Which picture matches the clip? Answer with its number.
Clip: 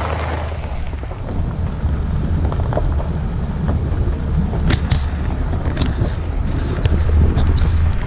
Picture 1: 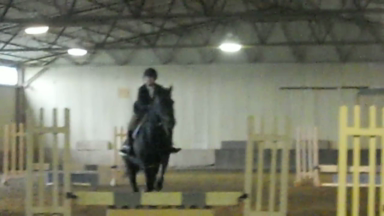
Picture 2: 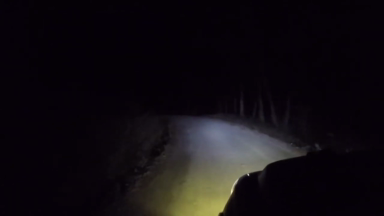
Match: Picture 2